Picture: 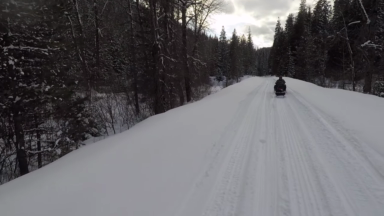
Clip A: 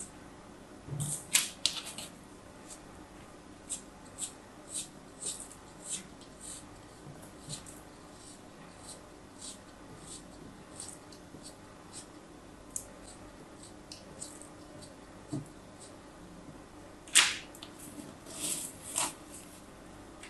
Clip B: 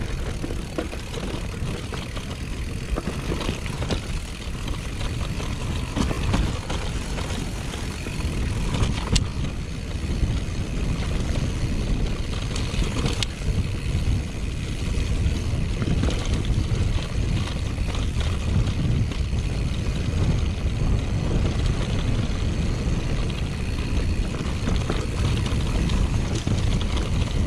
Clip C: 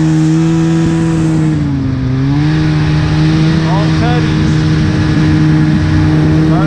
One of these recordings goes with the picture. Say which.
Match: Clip C